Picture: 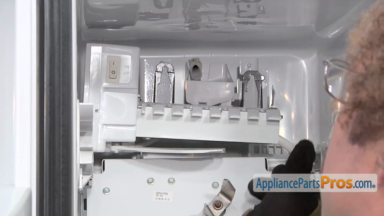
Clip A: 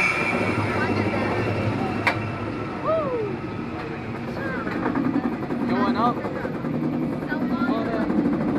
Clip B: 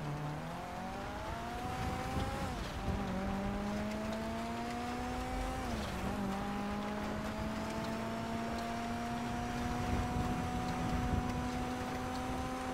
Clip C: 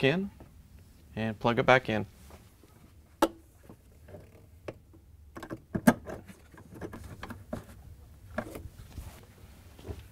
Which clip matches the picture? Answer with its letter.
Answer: C